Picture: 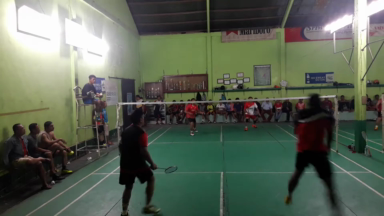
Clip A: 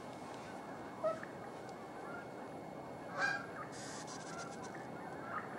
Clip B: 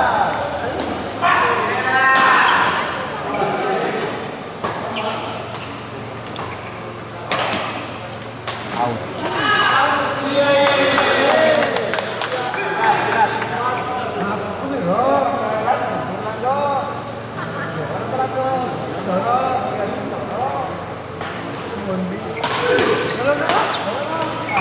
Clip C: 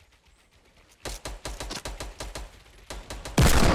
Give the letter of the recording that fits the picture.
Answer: B